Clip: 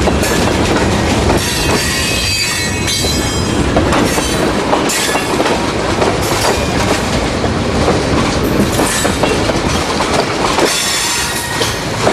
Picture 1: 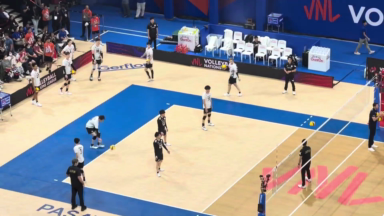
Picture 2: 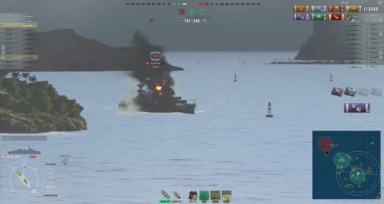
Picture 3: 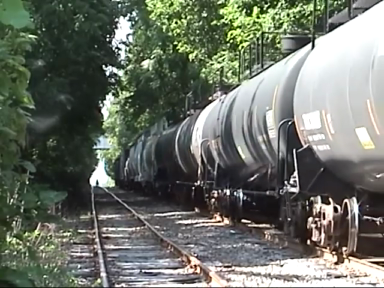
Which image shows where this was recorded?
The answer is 3